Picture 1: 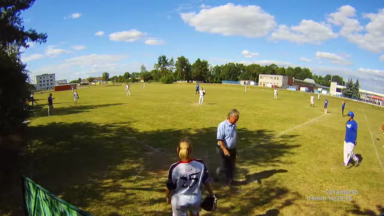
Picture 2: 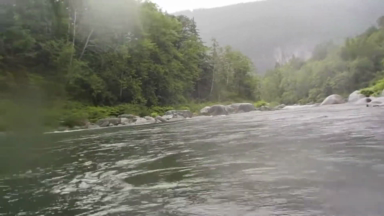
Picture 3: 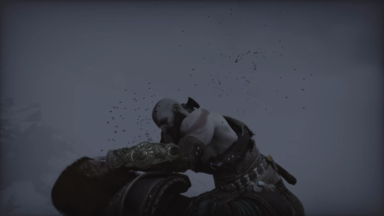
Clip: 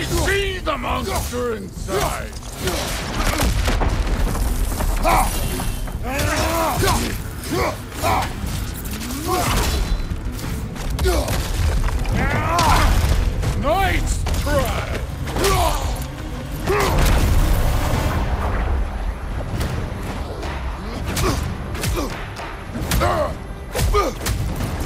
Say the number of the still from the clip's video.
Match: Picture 3